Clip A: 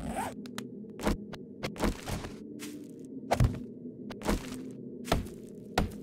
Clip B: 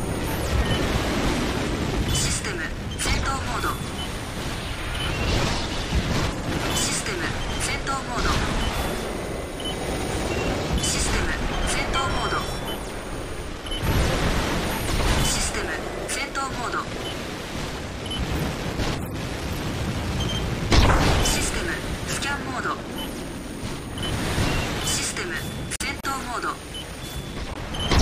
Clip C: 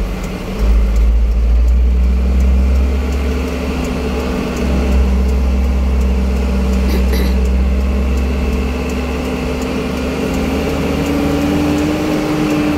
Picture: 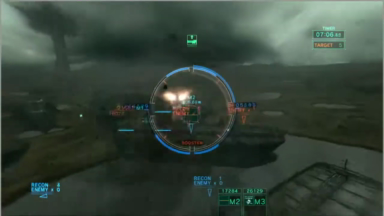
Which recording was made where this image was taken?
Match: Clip B